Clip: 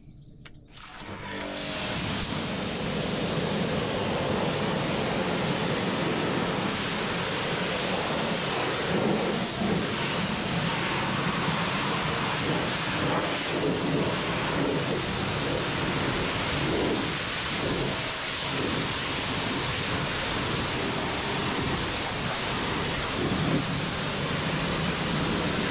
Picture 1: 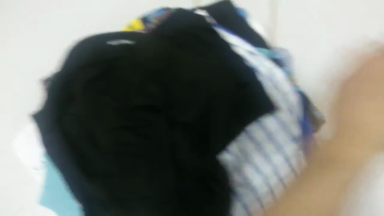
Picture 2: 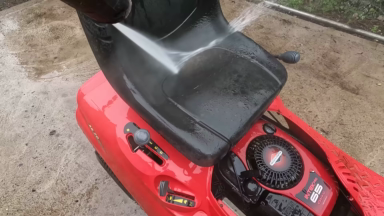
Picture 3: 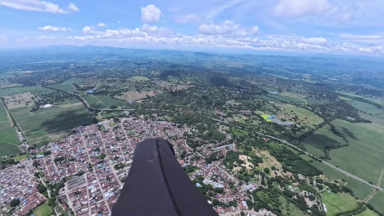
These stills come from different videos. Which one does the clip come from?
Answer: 2